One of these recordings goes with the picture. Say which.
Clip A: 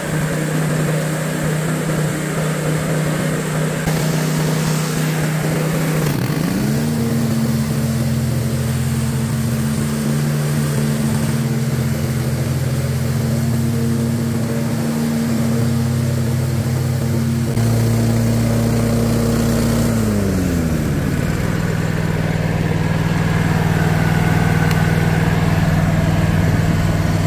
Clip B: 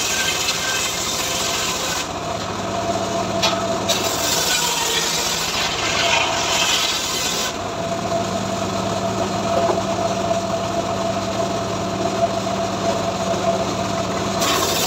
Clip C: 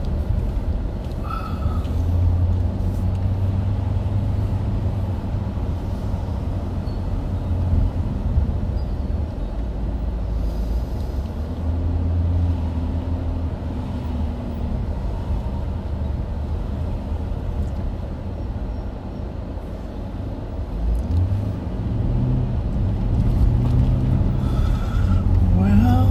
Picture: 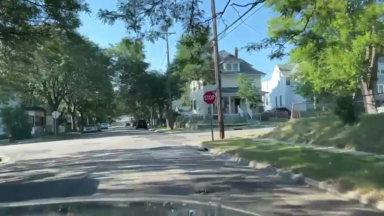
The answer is C